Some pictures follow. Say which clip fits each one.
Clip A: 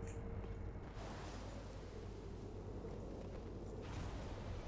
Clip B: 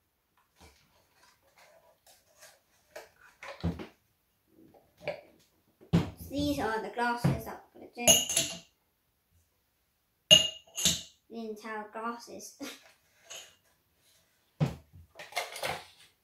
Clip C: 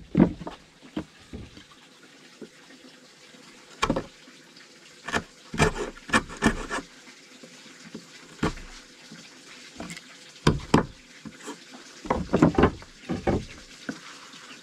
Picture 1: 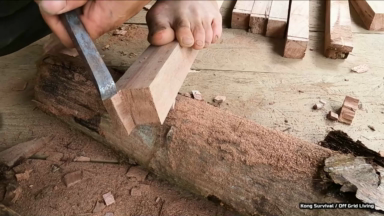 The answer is C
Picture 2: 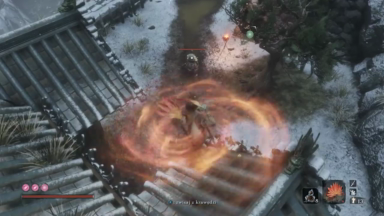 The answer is A